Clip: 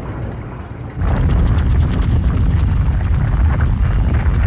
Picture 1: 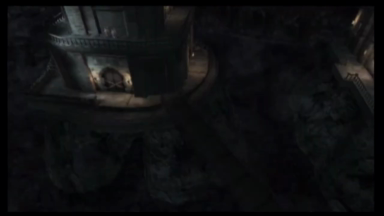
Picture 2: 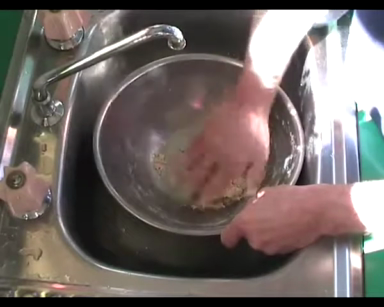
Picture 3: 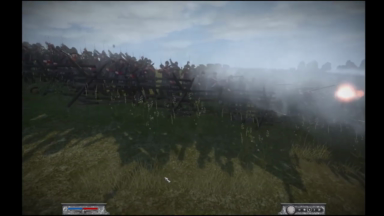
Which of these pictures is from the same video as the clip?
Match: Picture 1